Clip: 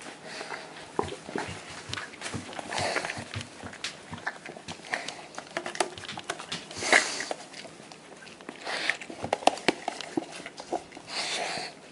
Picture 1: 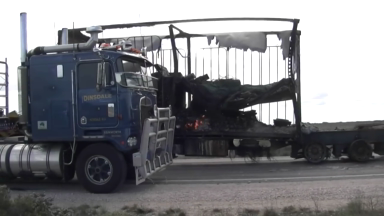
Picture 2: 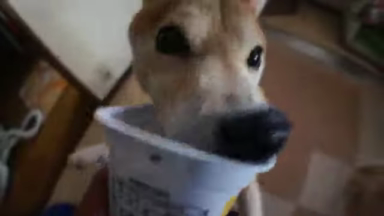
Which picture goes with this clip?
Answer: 2